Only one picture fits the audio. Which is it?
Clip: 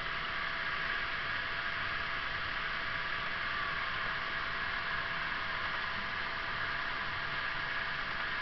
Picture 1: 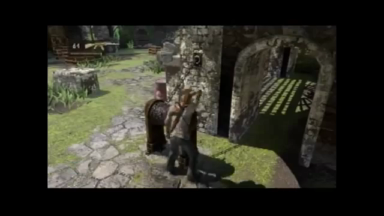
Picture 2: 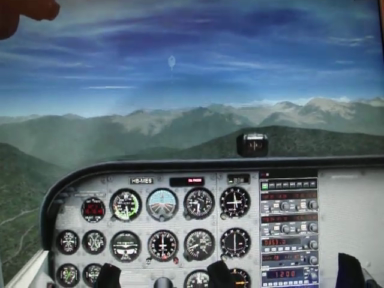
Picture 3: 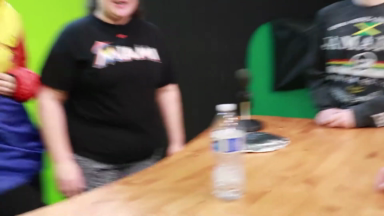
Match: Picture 2